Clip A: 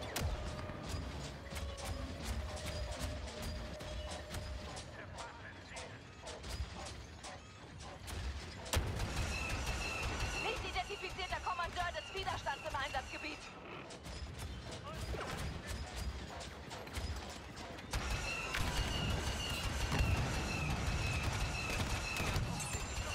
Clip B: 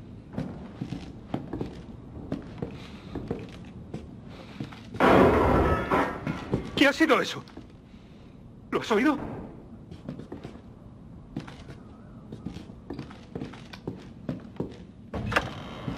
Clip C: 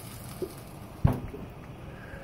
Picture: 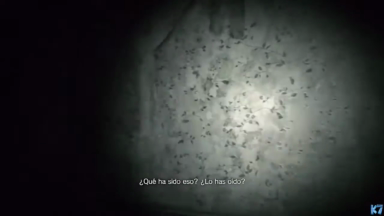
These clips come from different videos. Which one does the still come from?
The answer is B